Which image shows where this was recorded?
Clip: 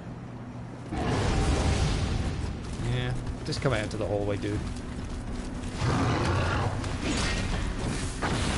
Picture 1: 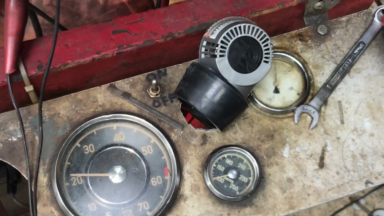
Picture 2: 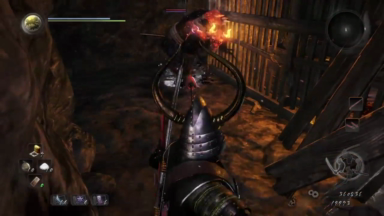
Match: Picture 2